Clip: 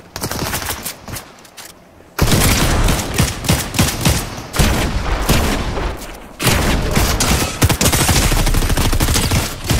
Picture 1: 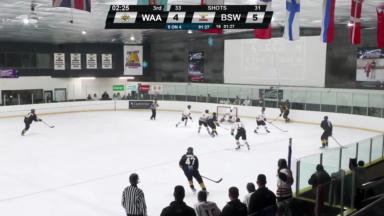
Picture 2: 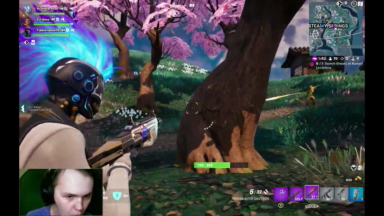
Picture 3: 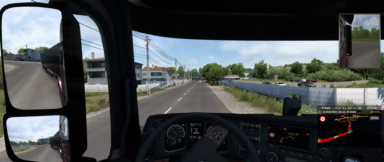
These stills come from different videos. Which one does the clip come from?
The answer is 2